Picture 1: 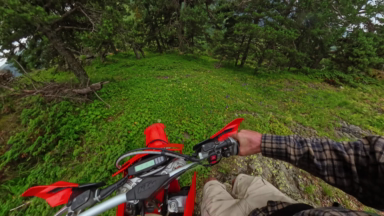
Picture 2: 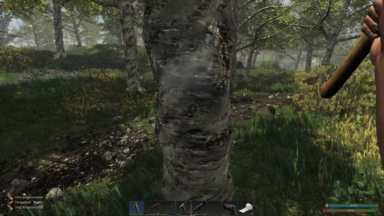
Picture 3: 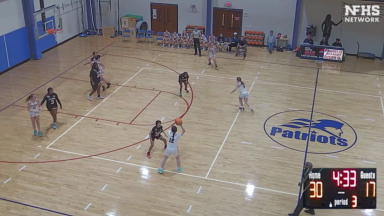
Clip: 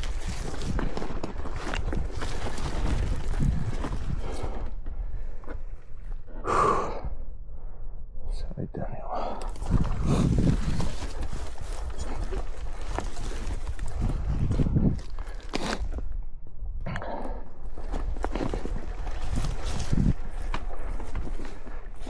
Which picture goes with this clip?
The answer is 1